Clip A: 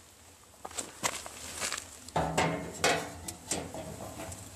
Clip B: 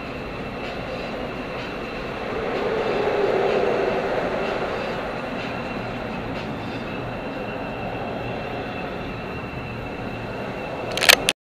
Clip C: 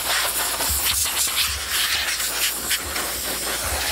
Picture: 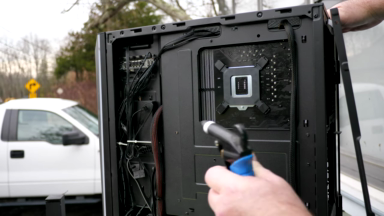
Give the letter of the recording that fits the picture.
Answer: C